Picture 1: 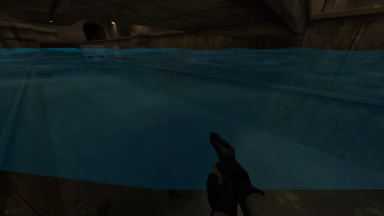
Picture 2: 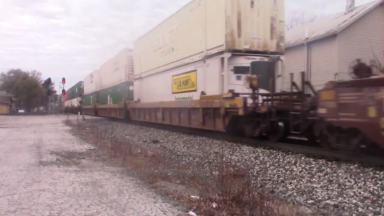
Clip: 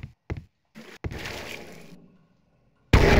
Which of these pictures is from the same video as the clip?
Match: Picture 1